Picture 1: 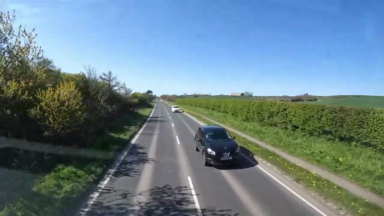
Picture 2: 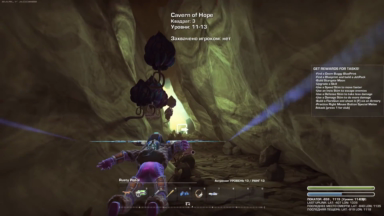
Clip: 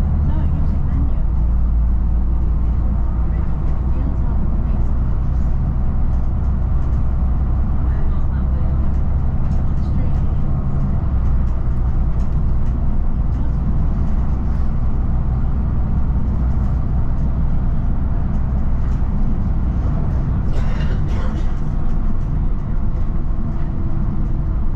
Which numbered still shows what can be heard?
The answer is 1